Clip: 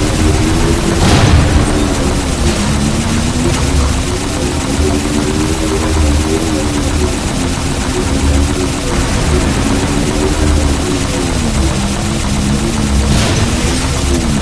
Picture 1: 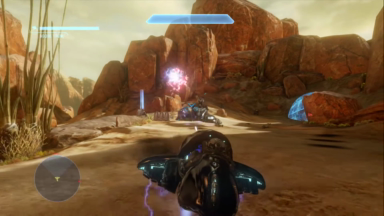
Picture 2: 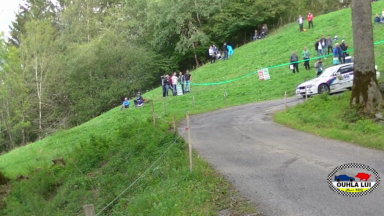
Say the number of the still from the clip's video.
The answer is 1